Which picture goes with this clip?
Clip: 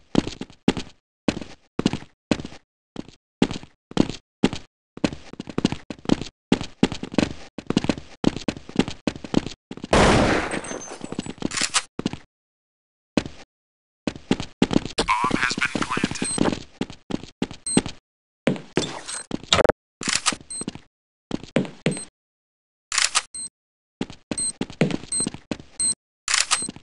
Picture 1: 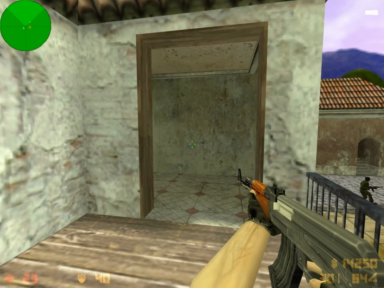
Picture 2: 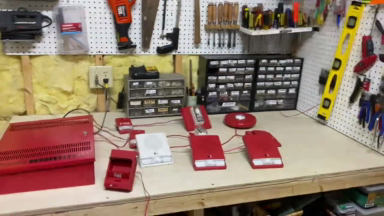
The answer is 1